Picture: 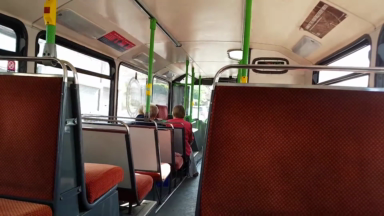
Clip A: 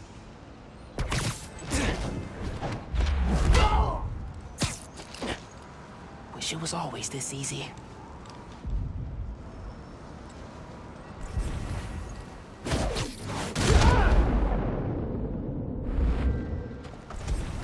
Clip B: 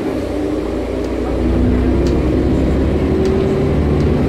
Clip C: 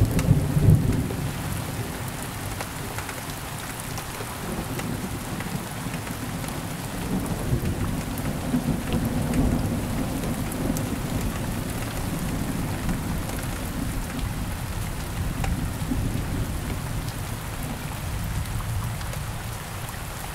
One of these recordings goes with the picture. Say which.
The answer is B